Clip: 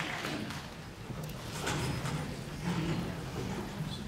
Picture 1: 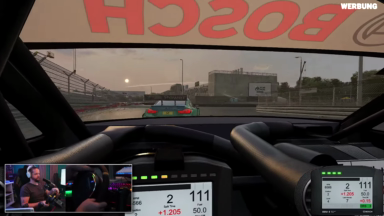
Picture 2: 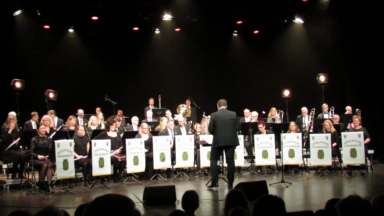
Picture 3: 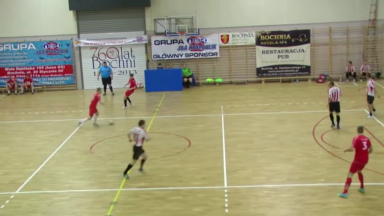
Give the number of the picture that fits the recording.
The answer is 2